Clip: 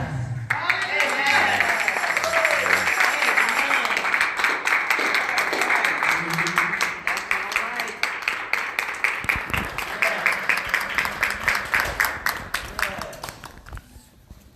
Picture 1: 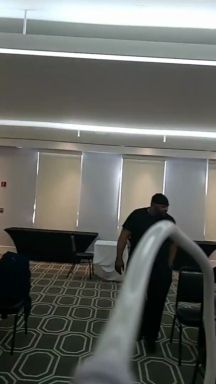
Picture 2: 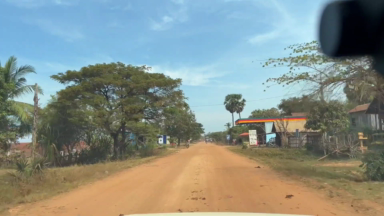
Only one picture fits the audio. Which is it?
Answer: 1